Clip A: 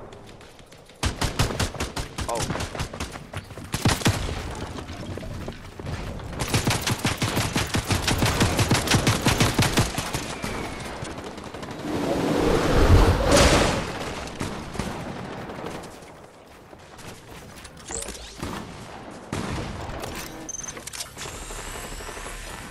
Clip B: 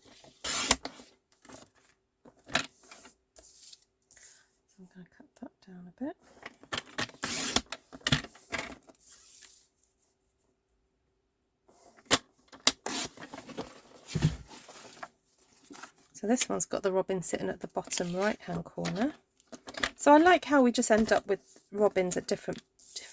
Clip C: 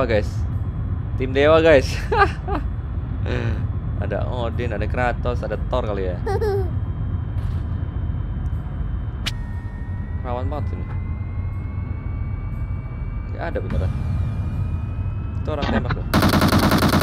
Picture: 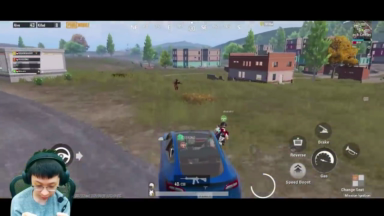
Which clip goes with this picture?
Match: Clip C